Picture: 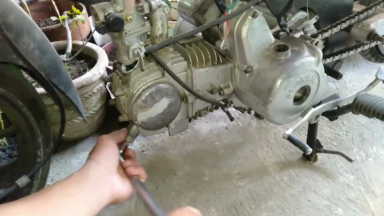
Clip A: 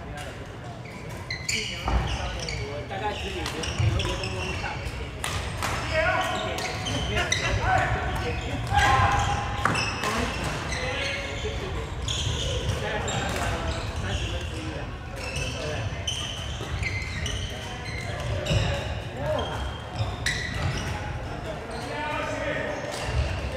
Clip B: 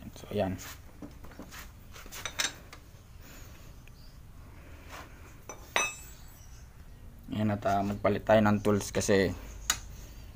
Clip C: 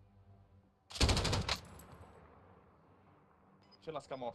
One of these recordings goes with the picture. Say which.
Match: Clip B